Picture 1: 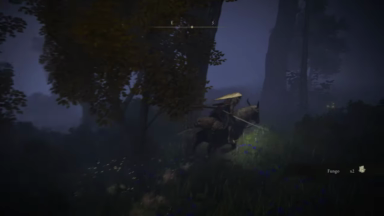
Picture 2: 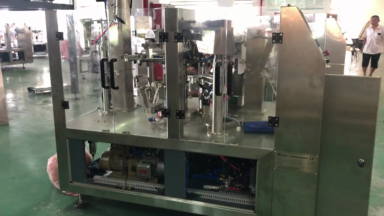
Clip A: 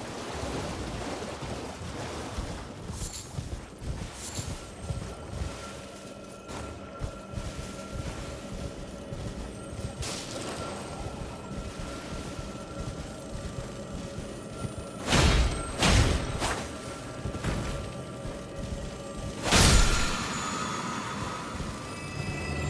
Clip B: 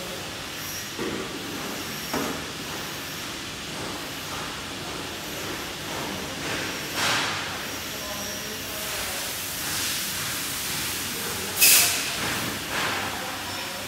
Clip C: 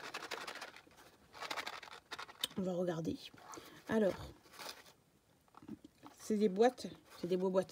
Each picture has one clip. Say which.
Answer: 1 A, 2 B